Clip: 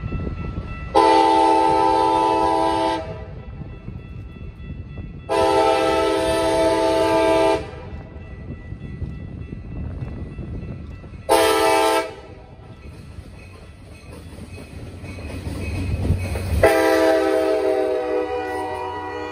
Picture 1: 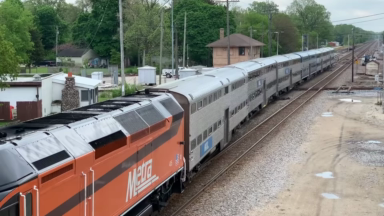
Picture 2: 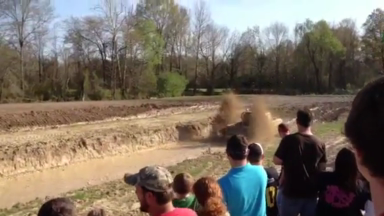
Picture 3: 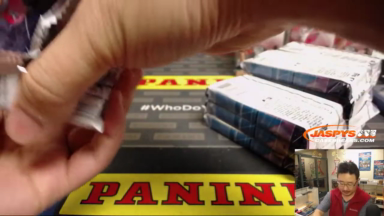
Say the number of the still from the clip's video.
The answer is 1